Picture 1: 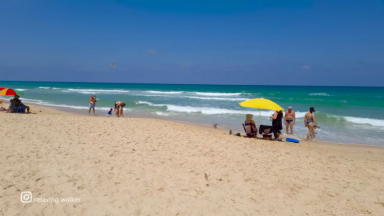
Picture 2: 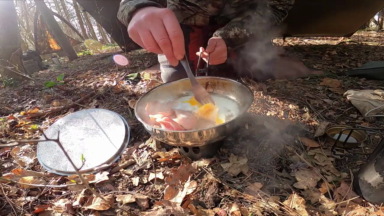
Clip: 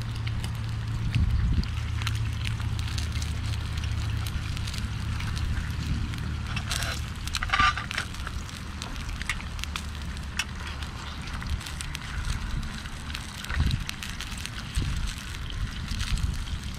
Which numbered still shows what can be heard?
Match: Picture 2